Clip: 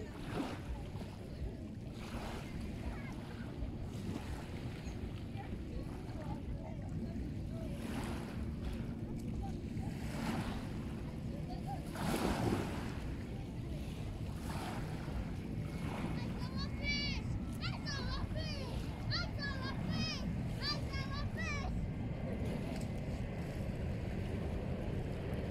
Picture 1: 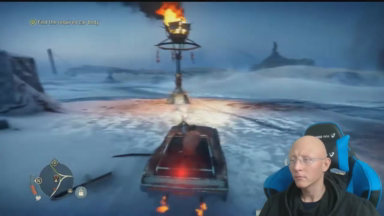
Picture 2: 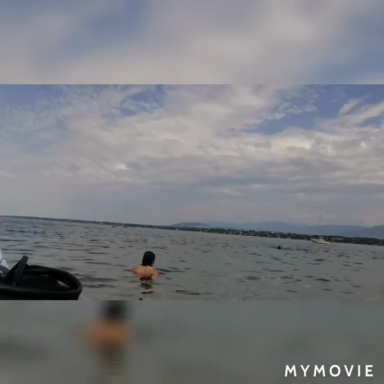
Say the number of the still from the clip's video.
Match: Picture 2